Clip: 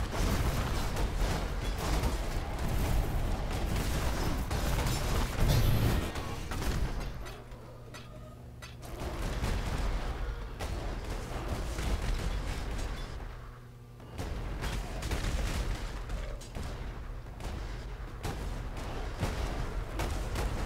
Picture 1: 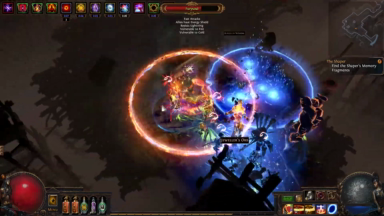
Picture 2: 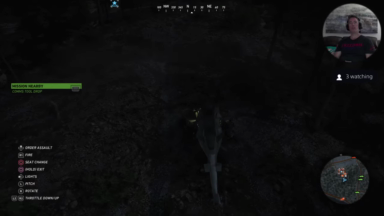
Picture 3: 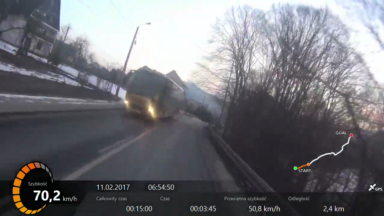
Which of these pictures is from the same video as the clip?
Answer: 1